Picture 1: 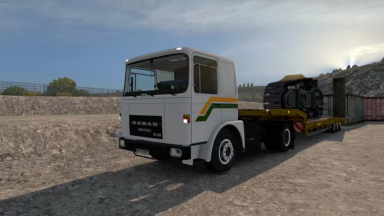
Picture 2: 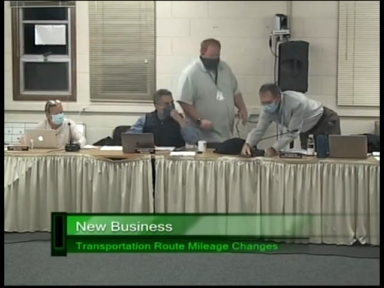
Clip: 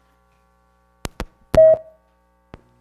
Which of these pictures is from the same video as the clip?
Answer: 2